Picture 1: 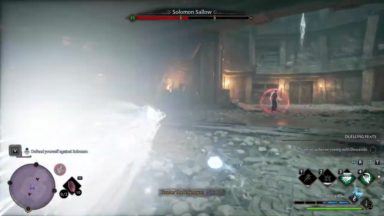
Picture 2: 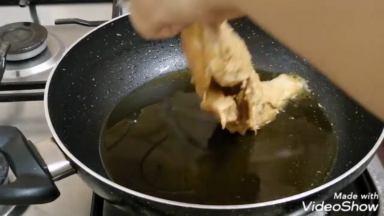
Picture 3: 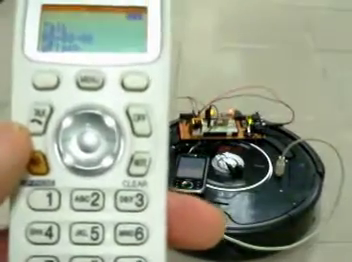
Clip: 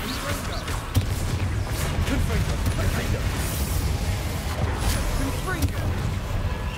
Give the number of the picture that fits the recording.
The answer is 1